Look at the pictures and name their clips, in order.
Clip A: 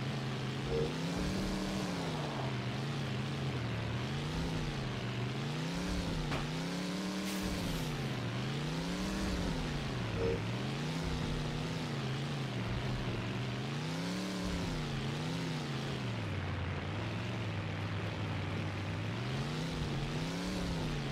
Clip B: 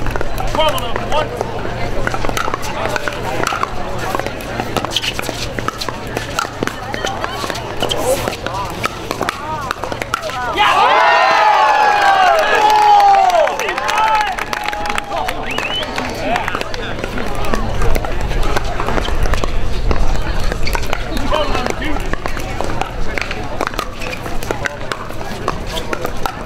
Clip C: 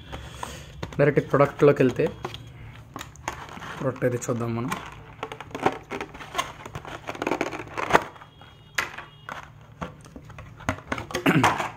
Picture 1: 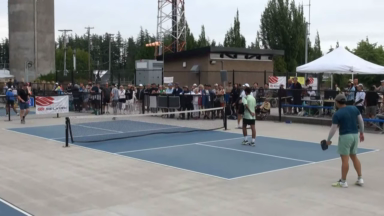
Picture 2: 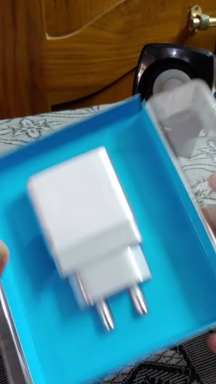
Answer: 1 B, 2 C